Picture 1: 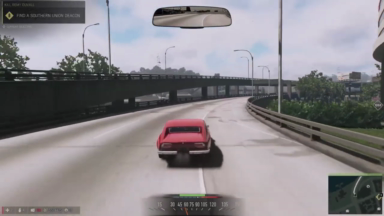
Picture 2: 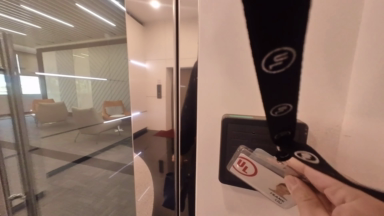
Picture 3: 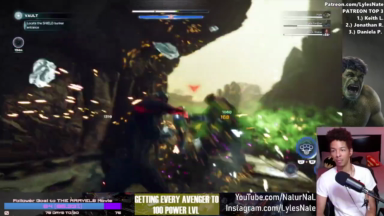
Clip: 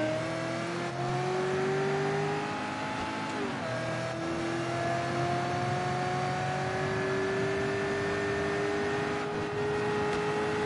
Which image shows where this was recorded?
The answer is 1